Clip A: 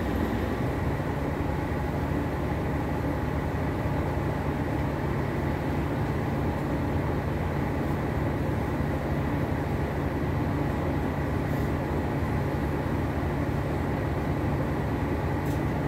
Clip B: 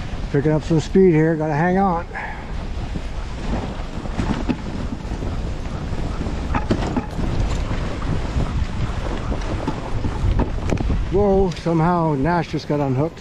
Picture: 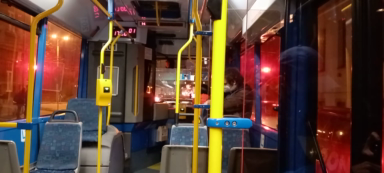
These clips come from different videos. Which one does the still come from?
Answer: A